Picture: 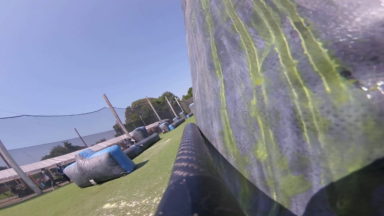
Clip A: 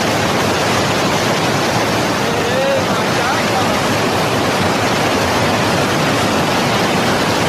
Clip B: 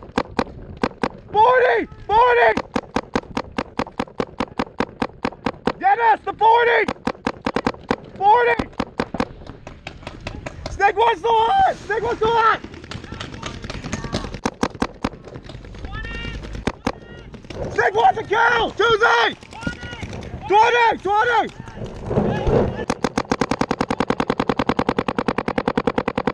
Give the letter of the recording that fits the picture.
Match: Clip B